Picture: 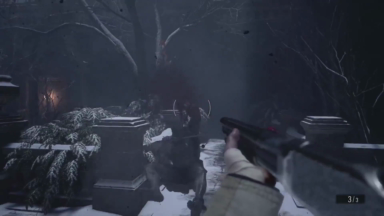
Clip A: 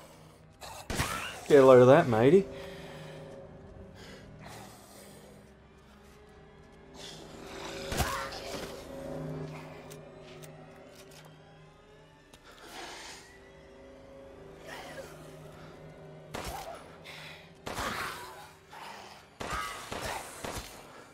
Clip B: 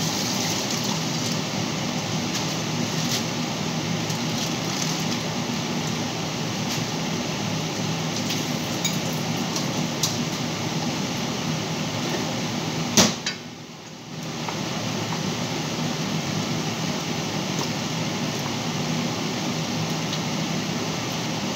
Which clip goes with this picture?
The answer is A